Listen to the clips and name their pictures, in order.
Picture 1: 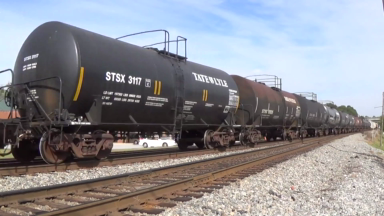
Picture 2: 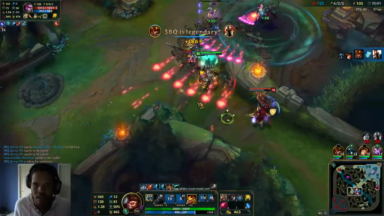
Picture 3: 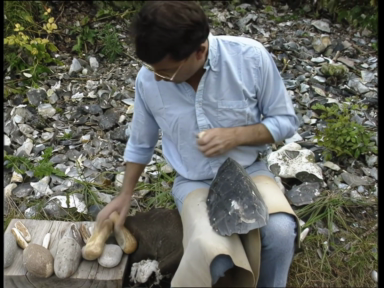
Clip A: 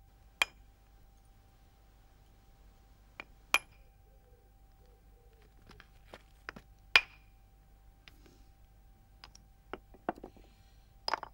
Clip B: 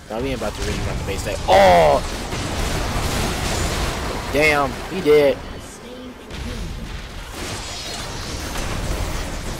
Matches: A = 3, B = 2